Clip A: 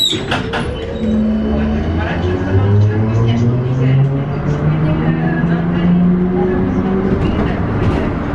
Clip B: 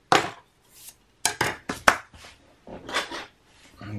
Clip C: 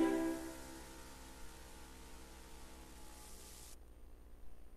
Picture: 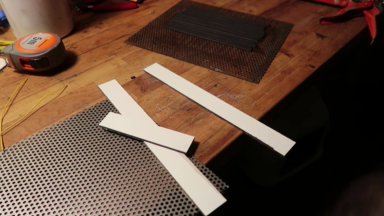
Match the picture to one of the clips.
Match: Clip B